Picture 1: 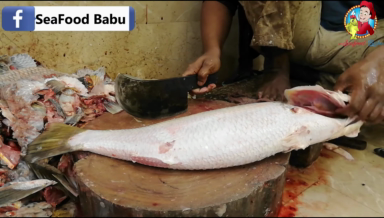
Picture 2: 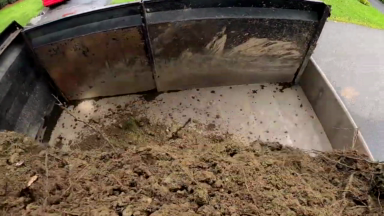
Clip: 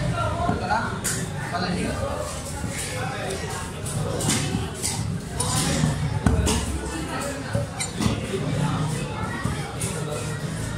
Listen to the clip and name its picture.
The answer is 1